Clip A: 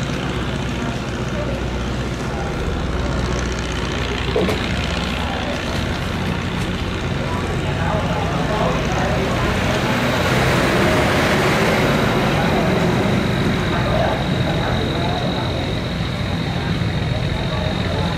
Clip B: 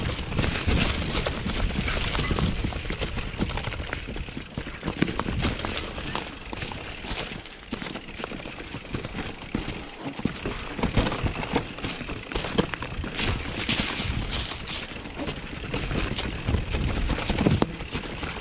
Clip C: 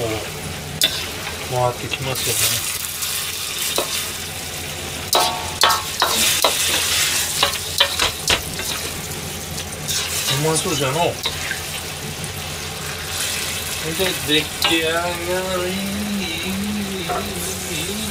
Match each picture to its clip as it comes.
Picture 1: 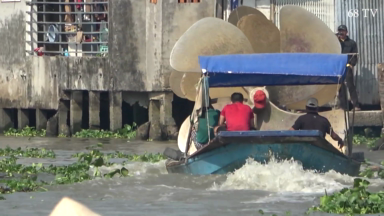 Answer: A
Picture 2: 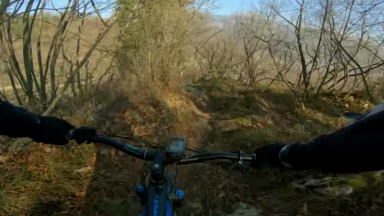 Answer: B